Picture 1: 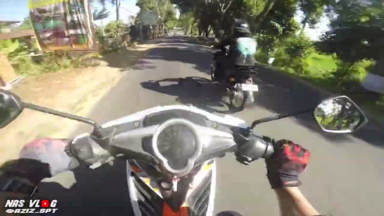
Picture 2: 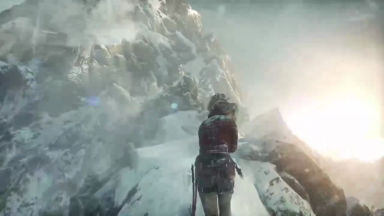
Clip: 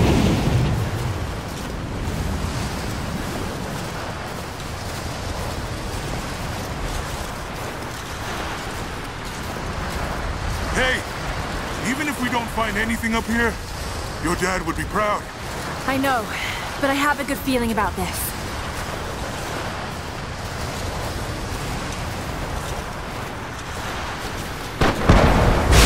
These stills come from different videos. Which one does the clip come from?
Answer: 2